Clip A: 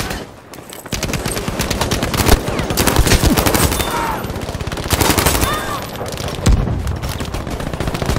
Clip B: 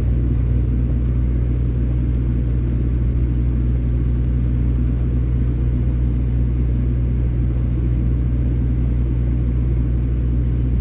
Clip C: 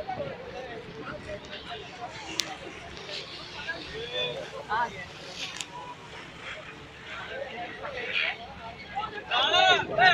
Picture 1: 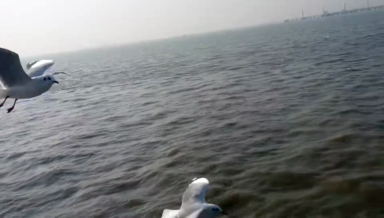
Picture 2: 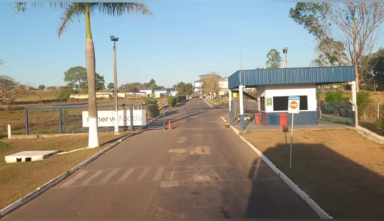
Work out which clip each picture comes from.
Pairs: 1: C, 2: B